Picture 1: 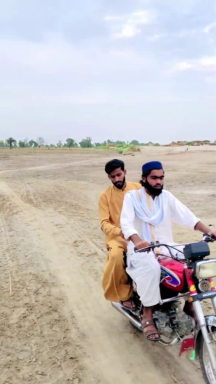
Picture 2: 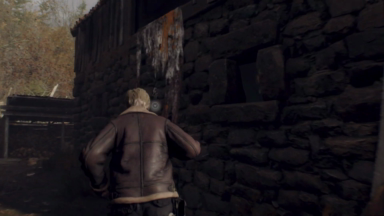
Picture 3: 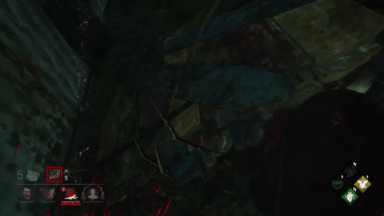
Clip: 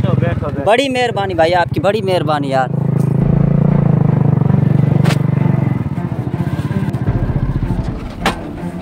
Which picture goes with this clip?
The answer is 1